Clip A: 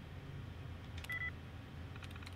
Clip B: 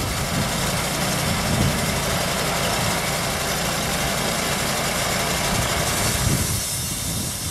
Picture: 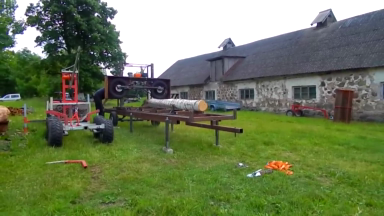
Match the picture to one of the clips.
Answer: B